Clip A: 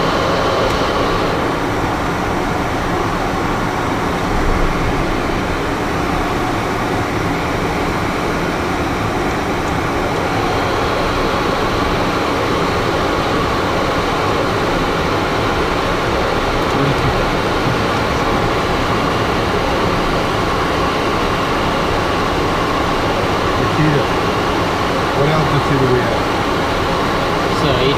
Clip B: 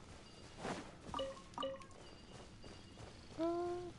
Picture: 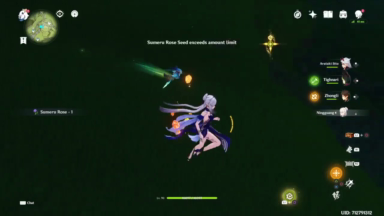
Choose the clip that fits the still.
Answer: B